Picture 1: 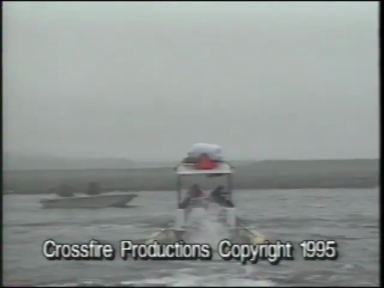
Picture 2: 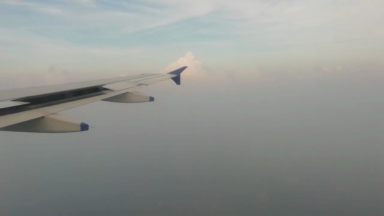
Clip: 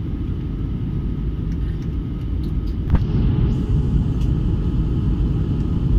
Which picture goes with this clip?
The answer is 2